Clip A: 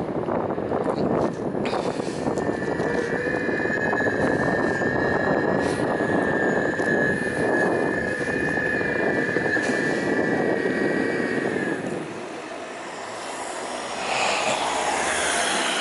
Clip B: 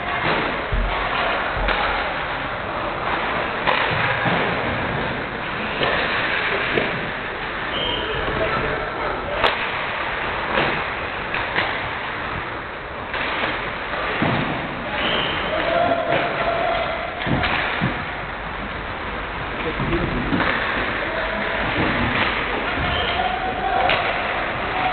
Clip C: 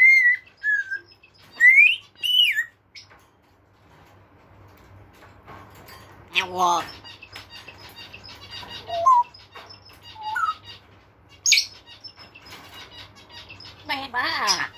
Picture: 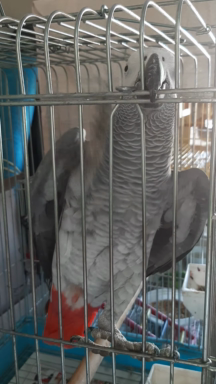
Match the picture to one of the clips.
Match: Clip C